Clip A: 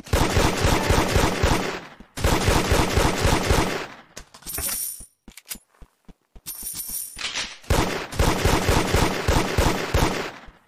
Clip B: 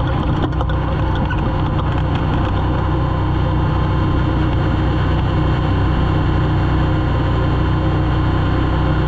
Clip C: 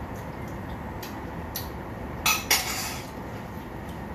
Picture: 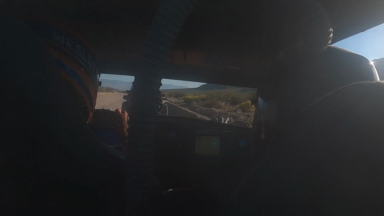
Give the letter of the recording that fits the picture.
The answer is B